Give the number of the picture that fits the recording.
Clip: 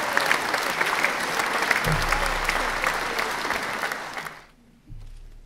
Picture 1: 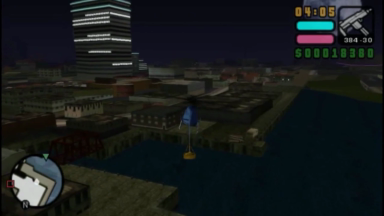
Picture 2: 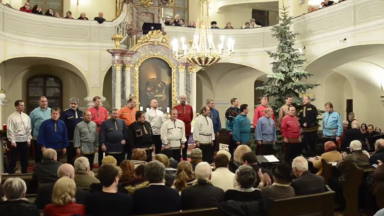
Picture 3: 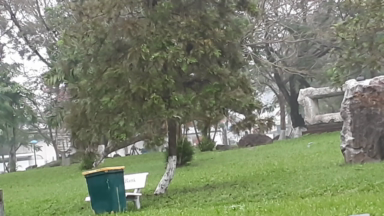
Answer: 2